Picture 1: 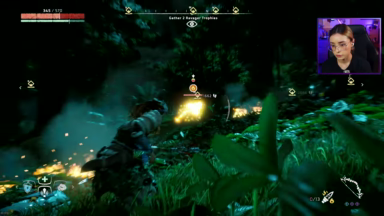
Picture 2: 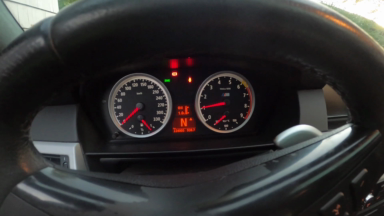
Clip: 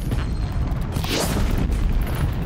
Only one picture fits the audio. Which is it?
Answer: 1